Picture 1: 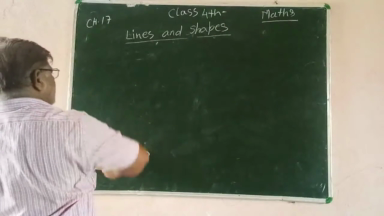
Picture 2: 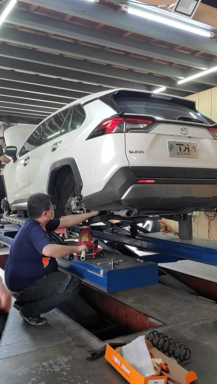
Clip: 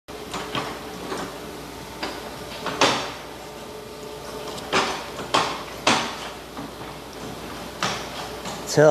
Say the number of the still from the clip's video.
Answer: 2